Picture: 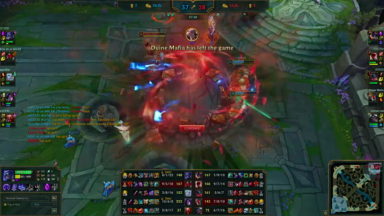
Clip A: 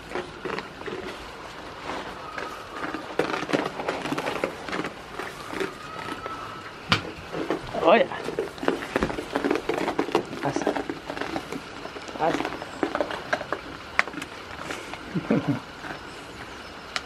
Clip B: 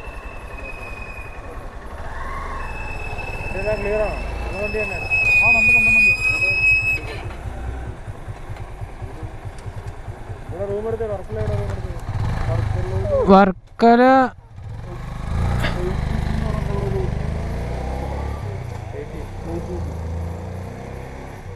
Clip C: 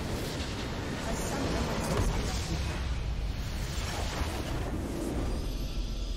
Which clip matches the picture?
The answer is C